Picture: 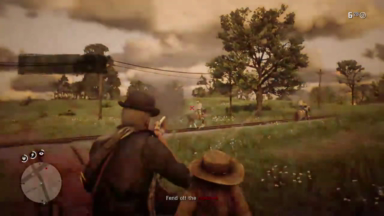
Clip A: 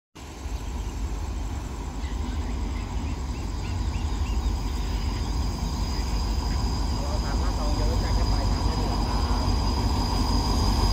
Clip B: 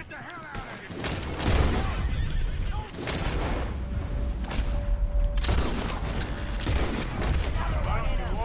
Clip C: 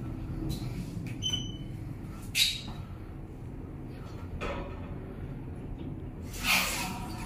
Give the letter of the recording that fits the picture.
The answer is B